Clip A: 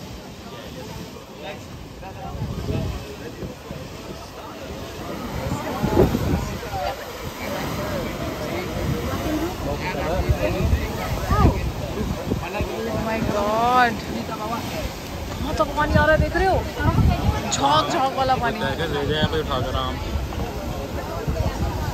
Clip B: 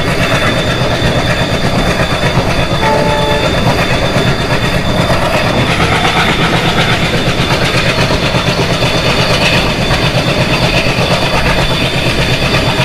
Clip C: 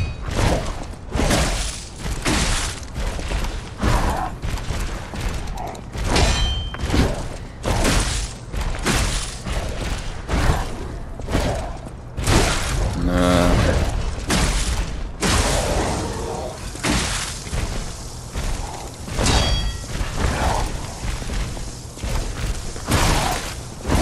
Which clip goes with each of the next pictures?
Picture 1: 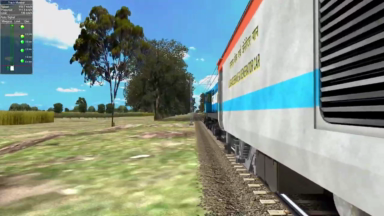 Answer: B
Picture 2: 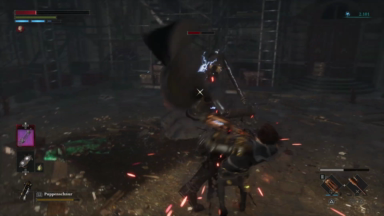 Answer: C